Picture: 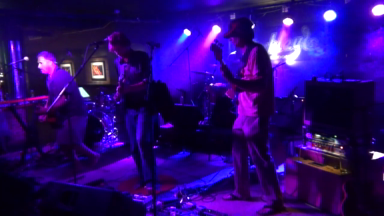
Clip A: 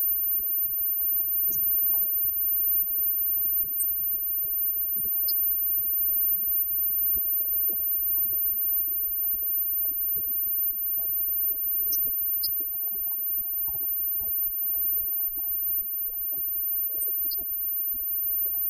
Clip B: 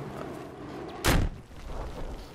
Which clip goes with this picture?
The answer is A